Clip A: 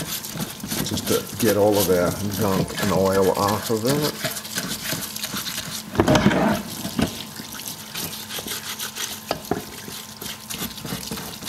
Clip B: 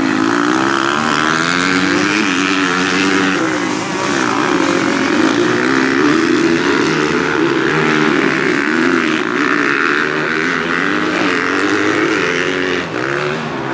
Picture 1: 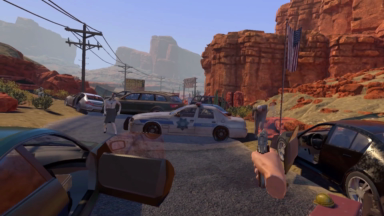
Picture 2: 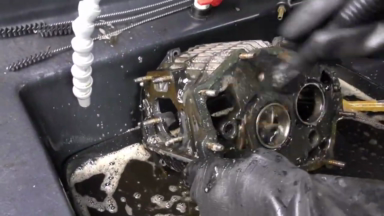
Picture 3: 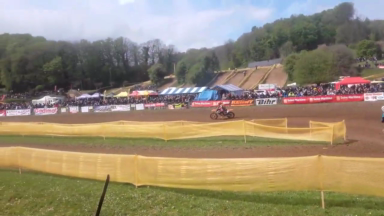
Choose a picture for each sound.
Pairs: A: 2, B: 3